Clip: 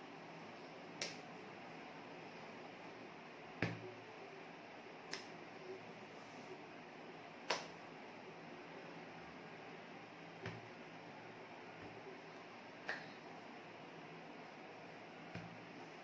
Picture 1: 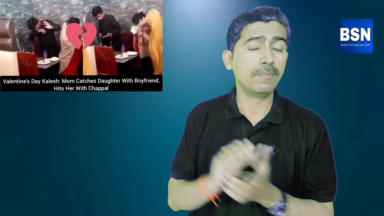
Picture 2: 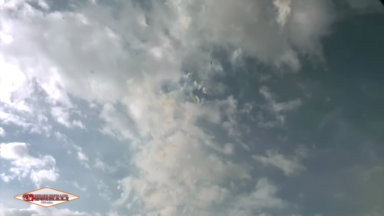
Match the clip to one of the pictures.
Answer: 1